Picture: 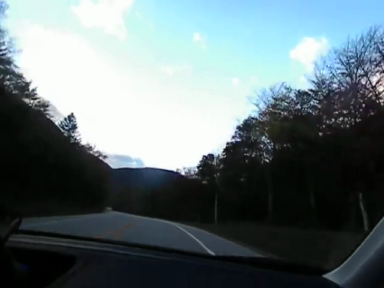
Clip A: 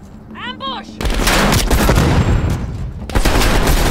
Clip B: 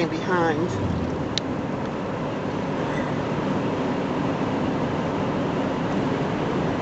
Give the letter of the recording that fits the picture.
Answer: B